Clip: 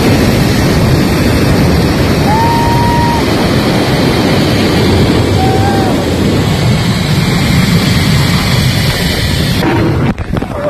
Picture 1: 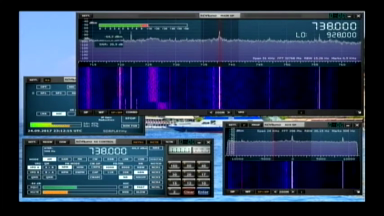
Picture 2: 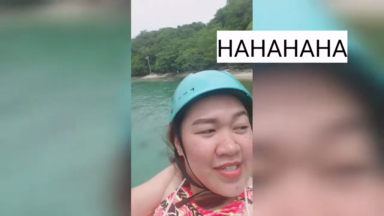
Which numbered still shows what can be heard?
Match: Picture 2